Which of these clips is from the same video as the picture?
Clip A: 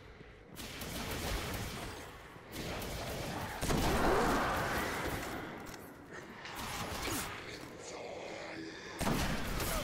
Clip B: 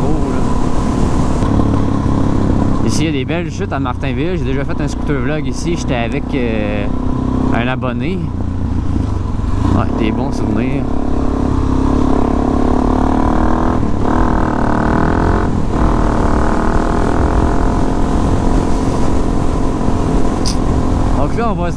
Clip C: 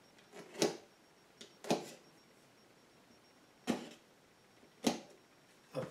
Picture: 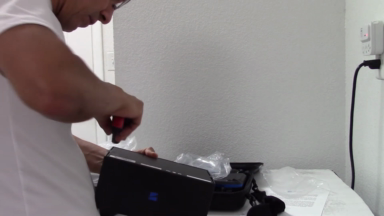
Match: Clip C